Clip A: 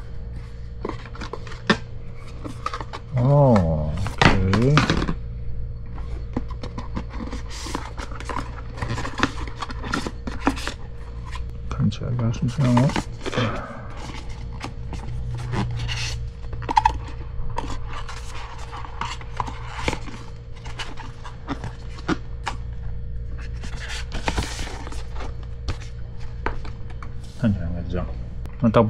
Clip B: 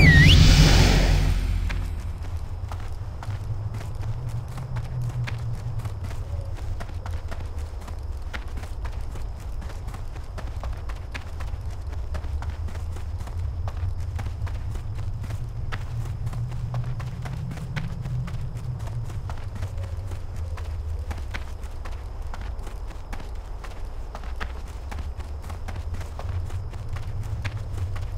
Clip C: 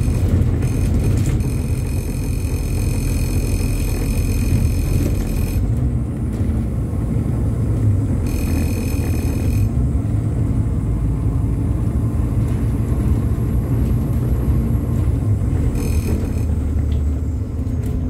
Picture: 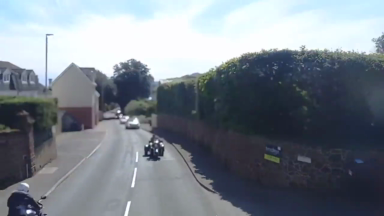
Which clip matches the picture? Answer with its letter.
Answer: C